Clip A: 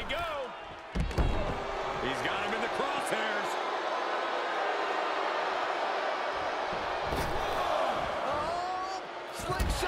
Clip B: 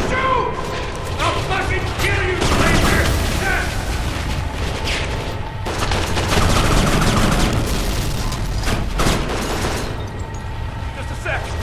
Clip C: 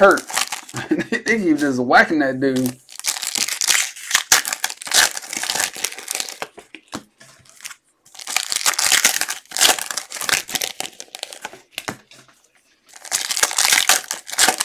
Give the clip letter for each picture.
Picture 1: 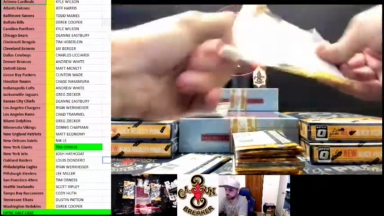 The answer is C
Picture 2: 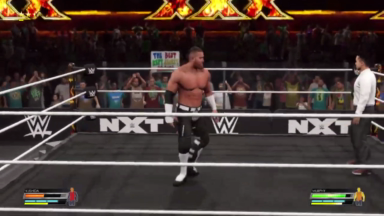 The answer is A